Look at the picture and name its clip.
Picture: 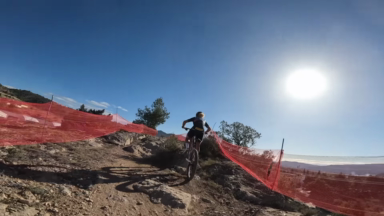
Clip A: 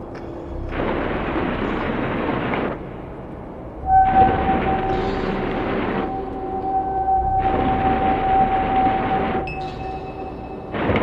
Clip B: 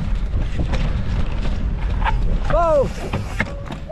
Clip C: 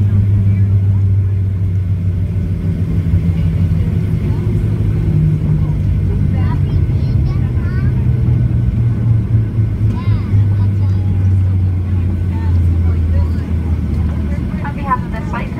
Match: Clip B